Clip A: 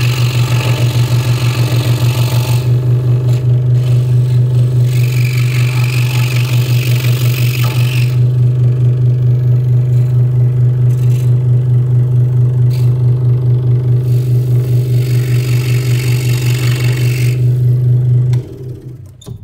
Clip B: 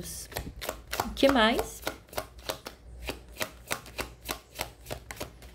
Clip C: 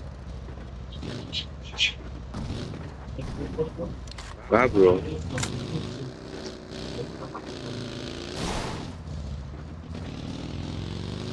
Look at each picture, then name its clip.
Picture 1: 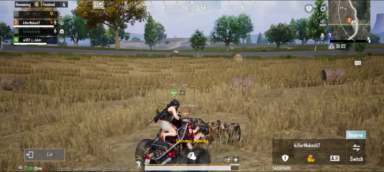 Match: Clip C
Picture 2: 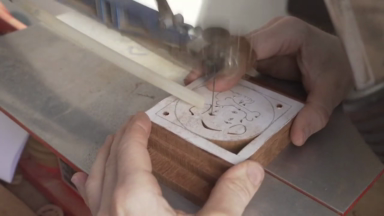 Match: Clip A